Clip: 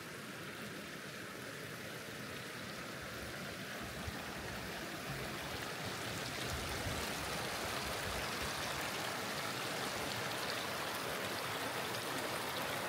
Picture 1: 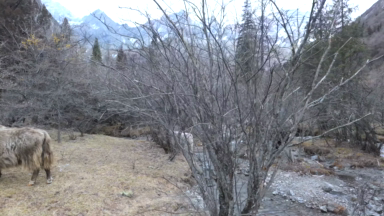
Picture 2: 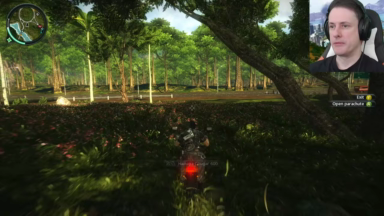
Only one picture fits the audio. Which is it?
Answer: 1